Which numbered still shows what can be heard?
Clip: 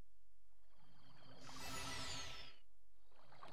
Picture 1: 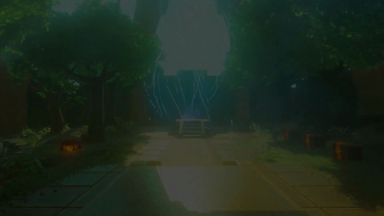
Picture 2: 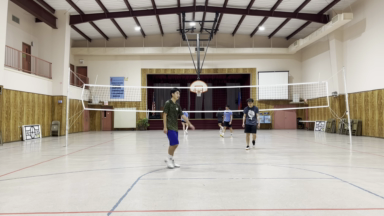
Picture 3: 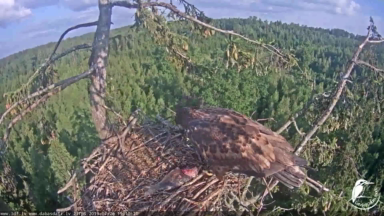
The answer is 1